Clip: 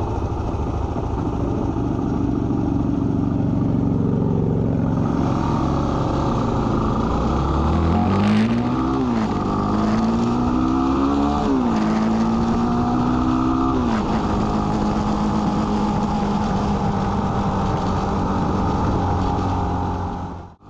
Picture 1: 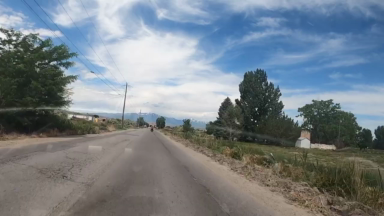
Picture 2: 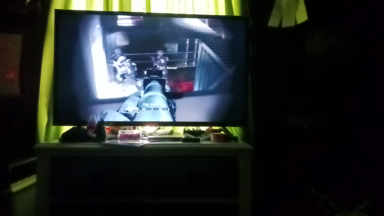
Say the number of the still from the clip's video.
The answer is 1